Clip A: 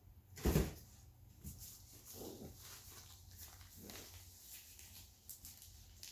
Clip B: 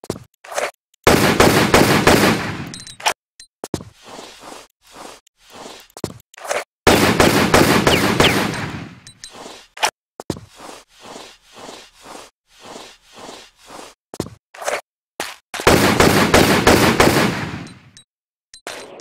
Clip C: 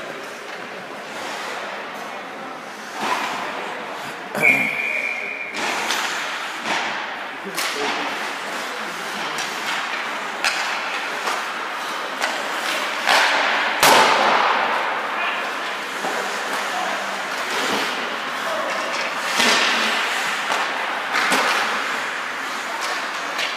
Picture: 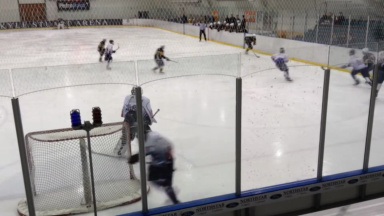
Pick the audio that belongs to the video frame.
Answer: C